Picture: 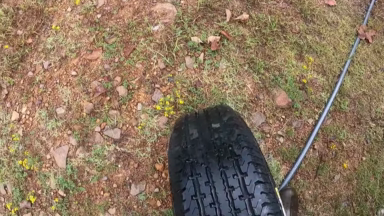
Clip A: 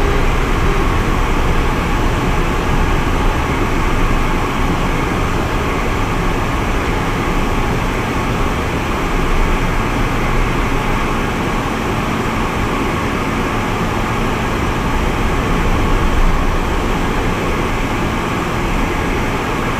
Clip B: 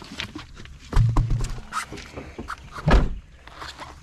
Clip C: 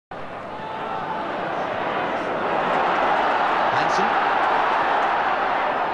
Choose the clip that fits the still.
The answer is B